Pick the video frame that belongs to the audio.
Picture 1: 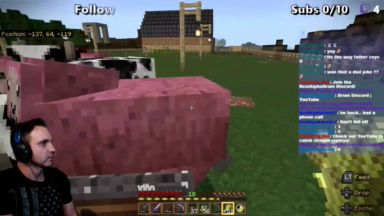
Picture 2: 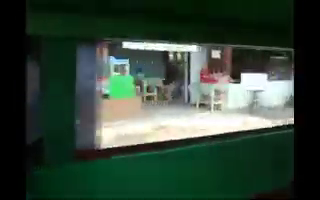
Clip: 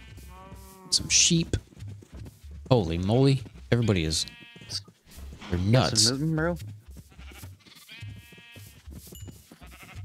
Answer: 1